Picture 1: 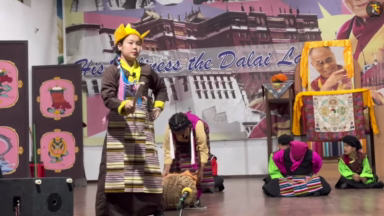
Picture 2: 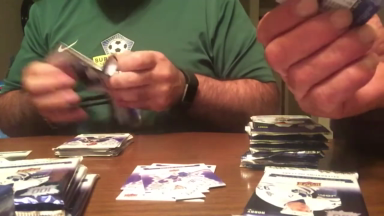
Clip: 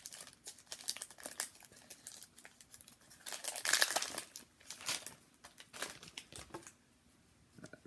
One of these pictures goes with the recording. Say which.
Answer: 2